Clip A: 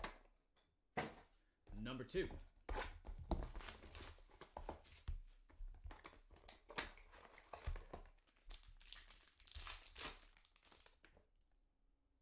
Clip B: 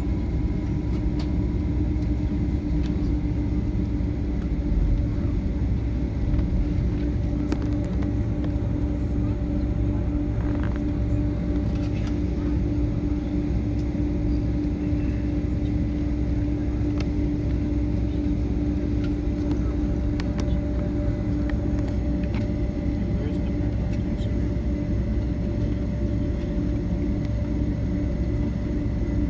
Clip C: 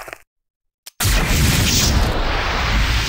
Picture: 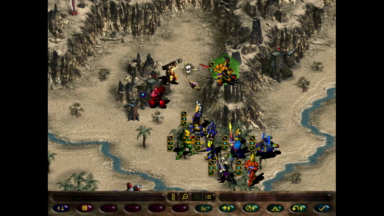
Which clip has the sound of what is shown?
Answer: C